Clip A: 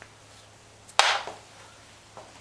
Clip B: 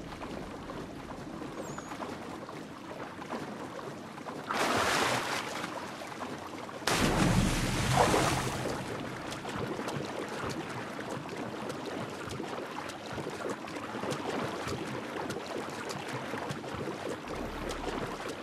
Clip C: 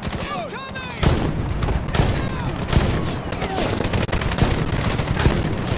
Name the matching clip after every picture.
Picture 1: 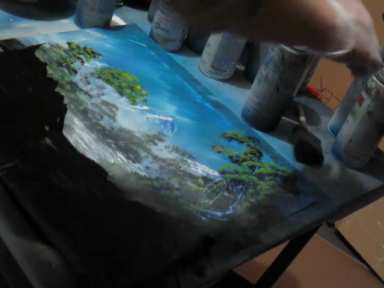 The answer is A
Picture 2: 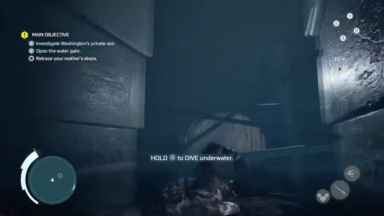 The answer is B